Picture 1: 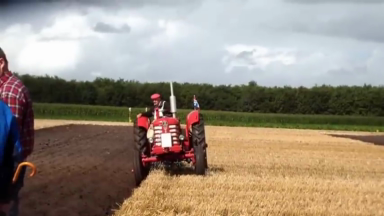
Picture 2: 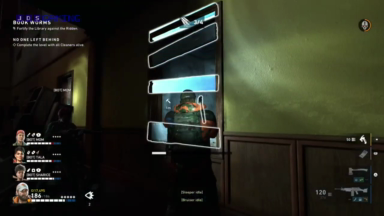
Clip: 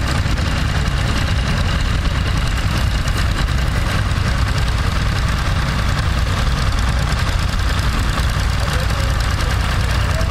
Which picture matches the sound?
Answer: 1